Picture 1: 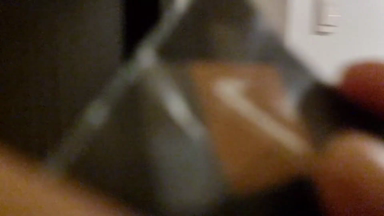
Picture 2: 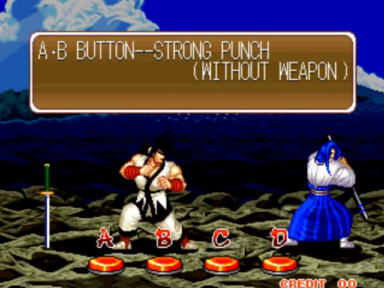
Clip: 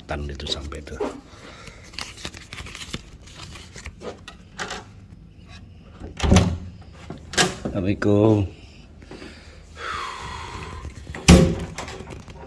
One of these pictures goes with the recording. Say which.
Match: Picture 1